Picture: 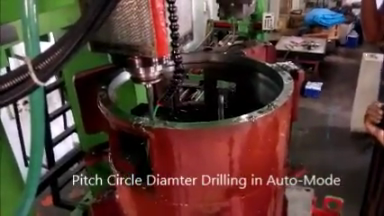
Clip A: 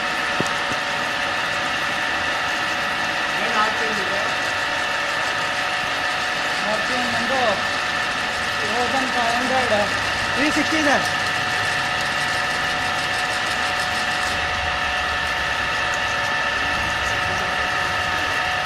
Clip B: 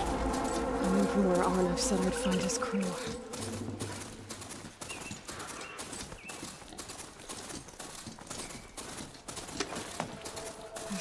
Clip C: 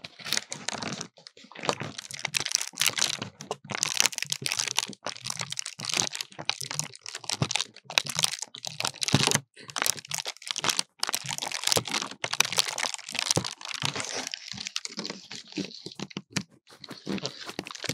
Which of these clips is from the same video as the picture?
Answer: A